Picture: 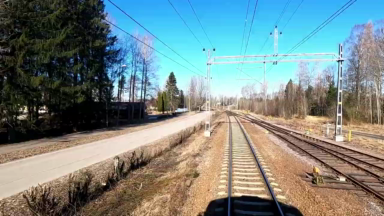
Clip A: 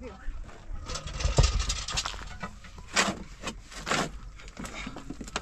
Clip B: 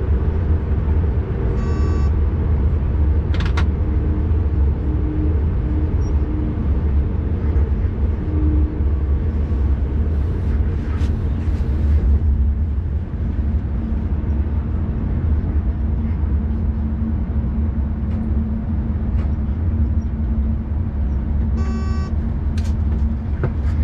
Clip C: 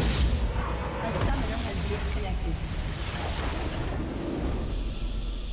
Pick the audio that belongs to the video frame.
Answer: B